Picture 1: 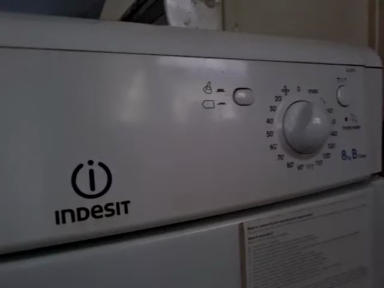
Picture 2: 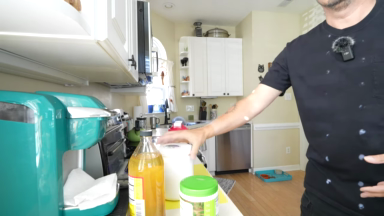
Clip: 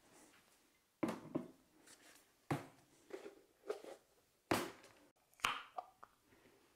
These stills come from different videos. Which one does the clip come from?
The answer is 2